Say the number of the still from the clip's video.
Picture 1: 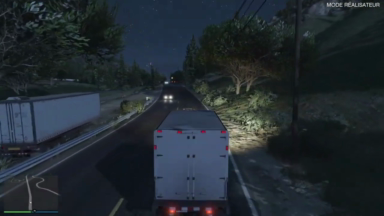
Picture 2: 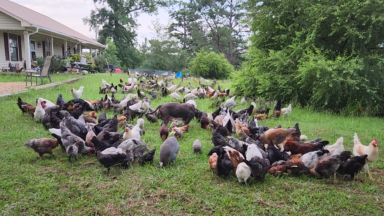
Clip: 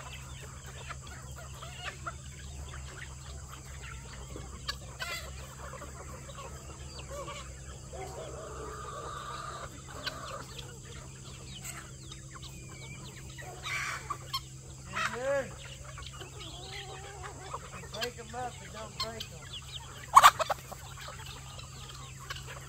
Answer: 2